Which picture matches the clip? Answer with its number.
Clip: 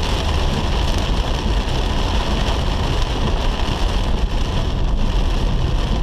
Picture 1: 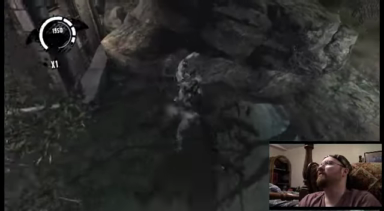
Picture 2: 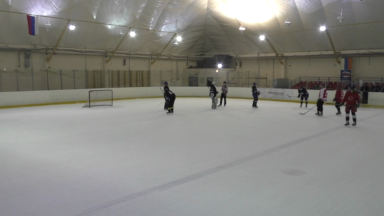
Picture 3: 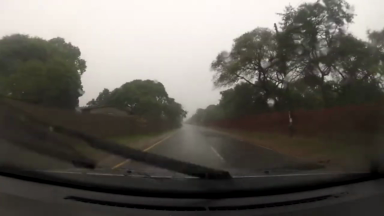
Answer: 3